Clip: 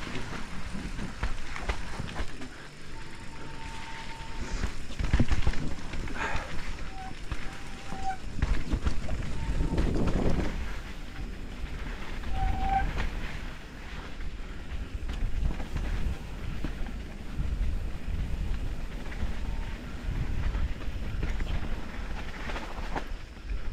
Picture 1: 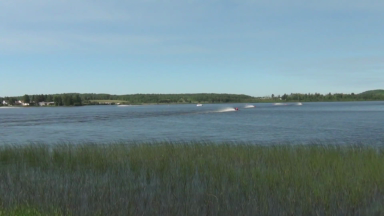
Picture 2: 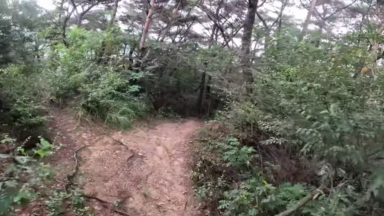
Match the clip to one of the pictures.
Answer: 2